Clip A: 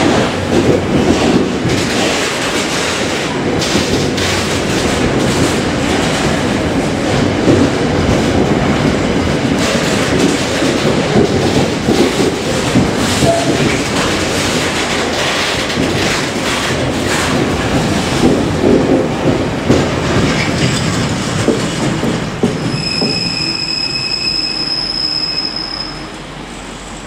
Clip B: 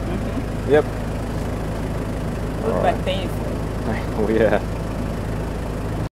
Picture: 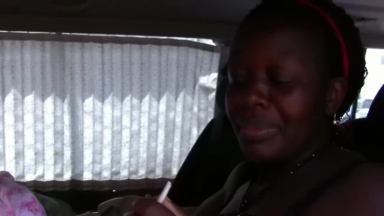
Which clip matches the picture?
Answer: B